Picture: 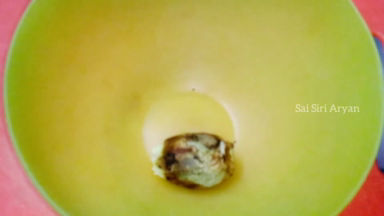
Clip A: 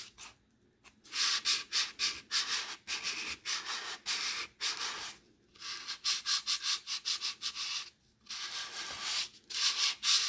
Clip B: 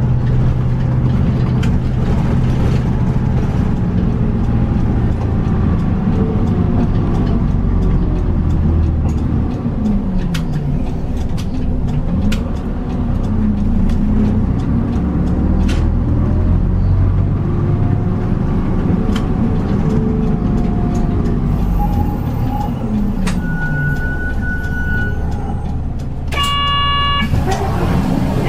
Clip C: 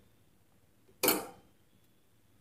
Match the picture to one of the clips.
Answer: C